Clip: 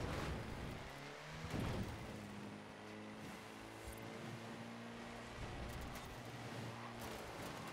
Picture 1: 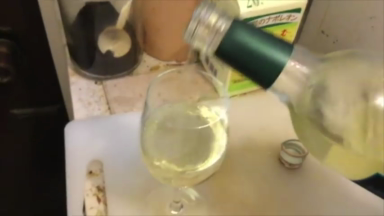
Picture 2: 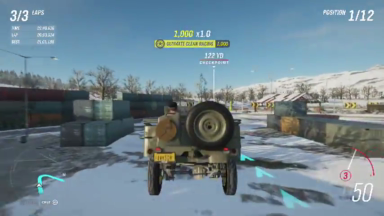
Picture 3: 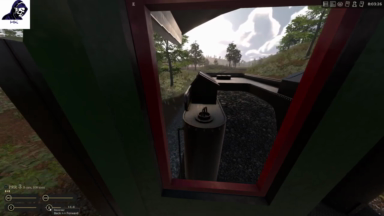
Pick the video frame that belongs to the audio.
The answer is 2